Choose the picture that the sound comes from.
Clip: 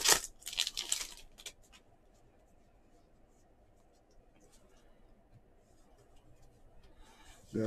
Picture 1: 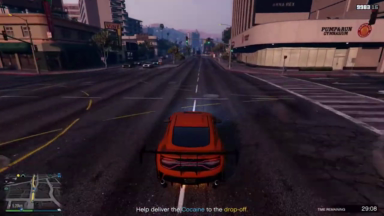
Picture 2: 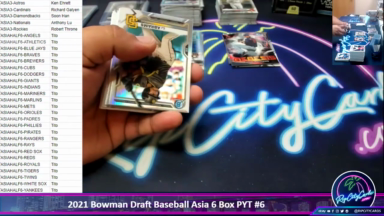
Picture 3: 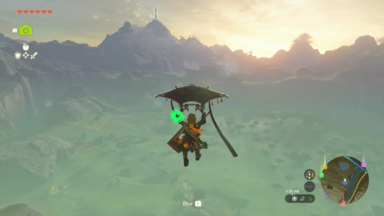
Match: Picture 2